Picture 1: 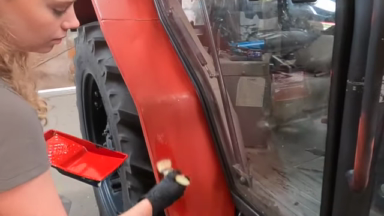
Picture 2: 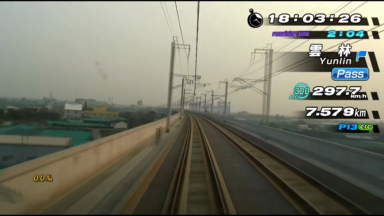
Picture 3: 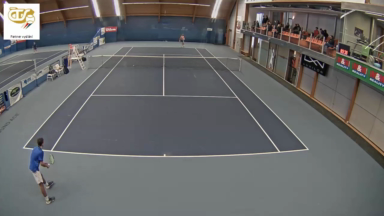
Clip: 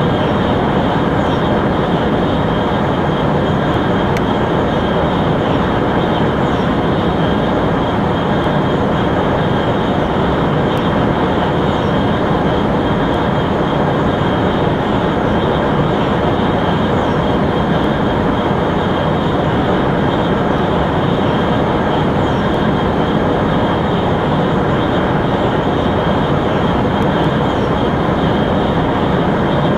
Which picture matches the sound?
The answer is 2